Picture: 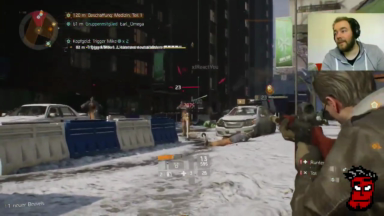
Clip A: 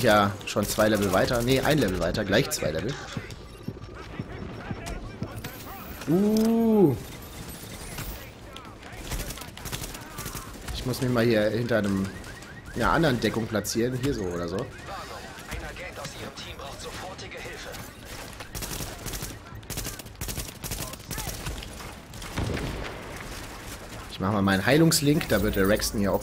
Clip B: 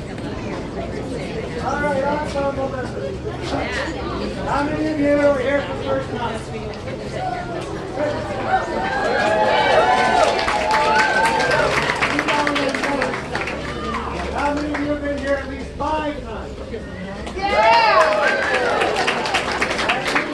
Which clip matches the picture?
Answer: A